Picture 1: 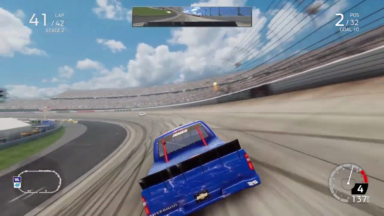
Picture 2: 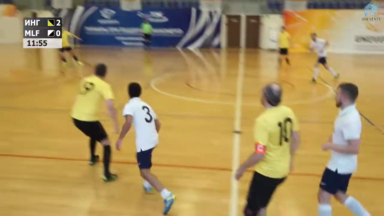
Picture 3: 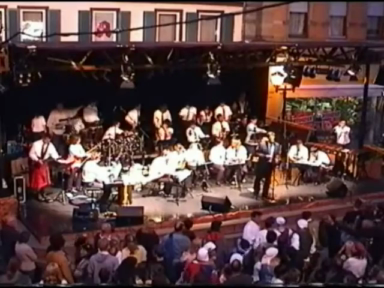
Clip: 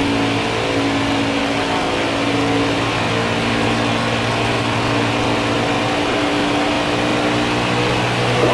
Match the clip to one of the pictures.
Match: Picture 1